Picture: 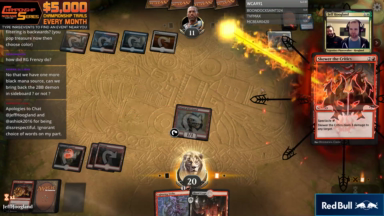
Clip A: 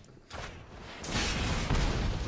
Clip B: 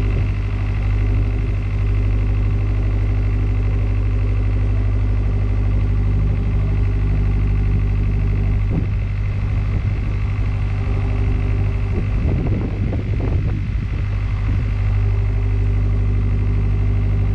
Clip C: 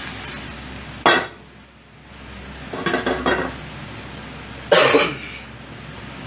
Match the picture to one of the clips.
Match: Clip A